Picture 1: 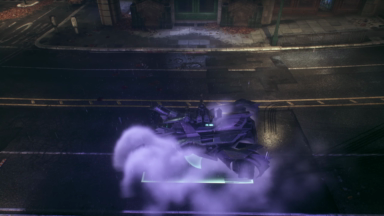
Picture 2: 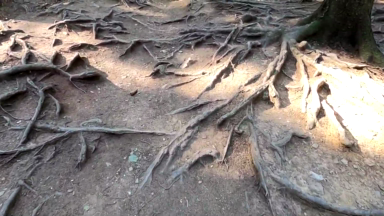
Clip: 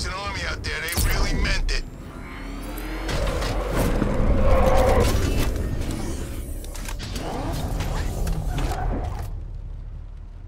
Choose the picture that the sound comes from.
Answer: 1